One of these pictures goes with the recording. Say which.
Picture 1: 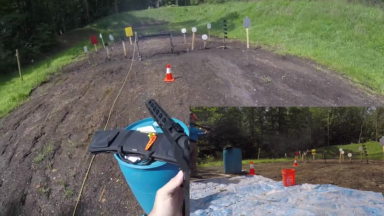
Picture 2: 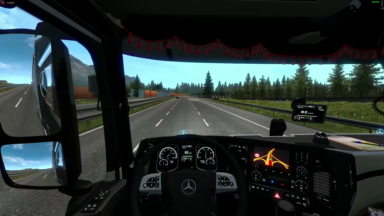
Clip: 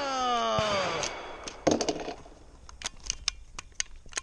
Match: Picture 1